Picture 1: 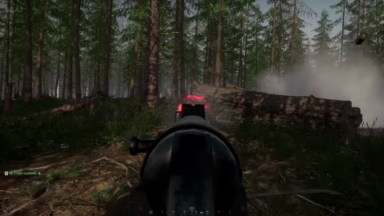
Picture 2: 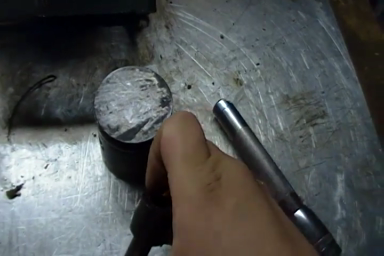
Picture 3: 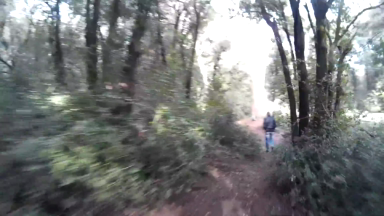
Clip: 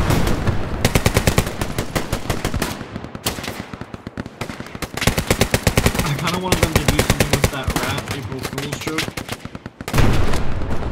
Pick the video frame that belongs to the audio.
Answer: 1